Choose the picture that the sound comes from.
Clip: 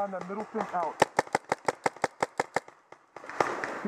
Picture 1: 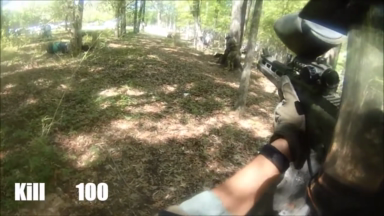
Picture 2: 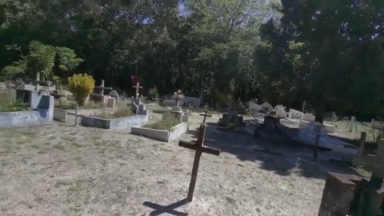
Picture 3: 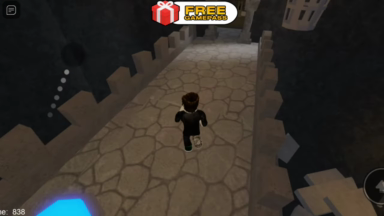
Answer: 1